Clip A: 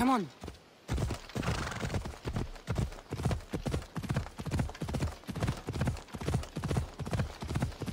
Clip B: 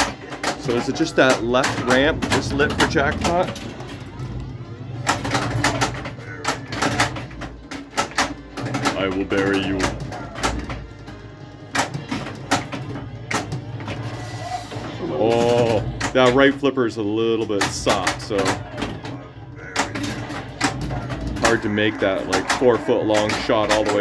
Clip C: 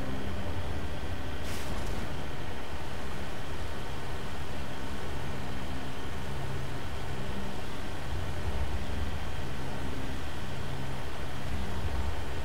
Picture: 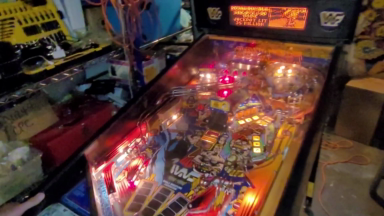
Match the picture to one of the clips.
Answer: B